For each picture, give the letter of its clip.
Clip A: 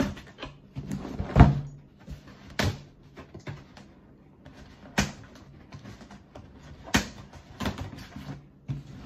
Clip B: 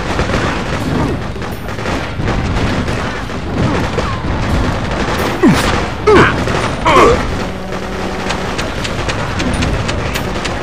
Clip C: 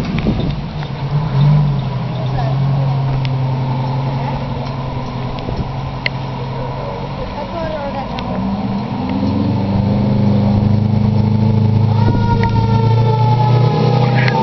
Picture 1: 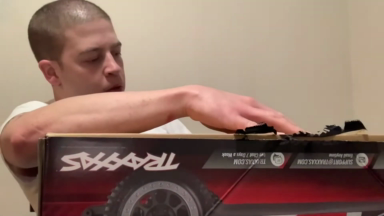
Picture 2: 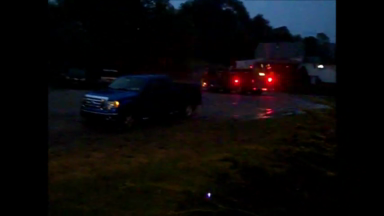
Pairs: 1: A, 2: C